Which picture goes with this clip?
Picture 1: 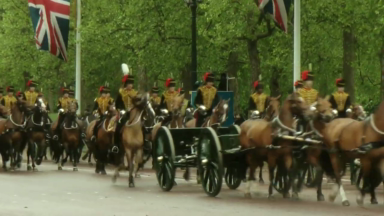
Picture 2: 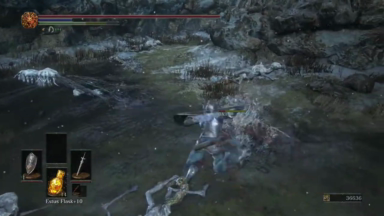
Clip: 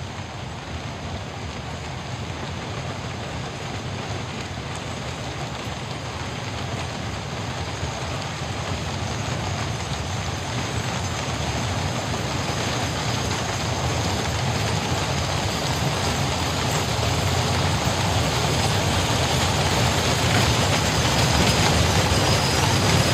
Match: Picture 1